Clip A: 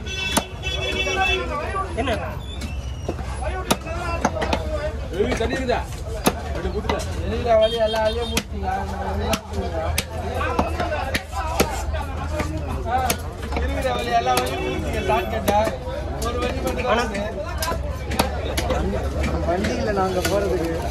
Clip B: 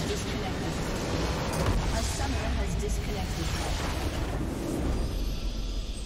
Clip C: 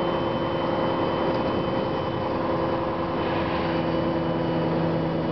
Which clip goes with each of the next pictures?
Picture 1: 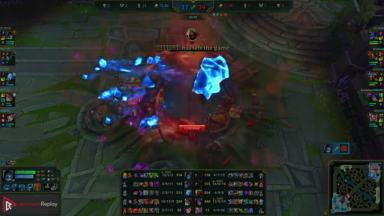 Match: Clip B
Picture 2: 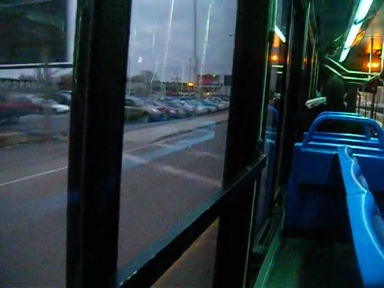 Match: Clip C